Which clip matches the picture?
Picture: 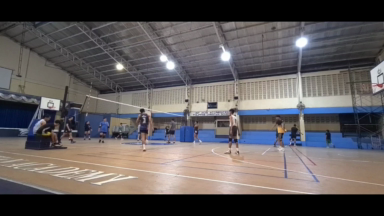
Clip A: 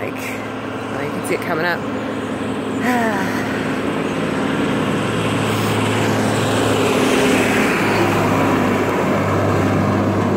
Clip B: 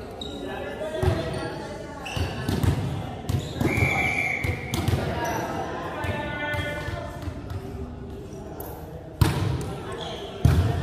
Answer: B